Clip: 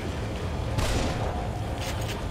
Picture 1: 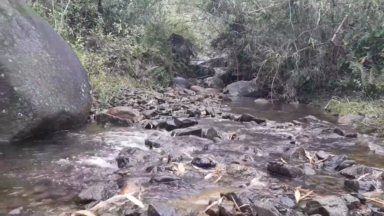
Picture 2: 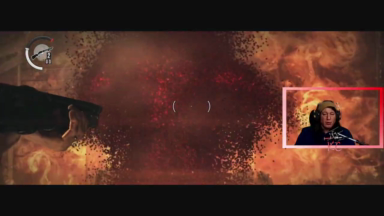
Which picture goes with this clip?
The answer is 2